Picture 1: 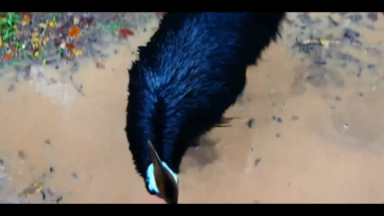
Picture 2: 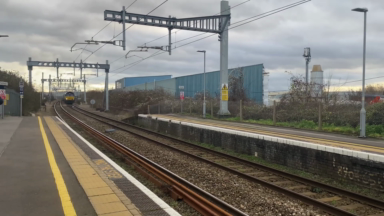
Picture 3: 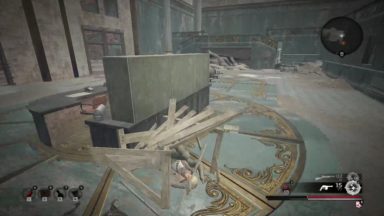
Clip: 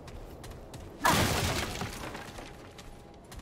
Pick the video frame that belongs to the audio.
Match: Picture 3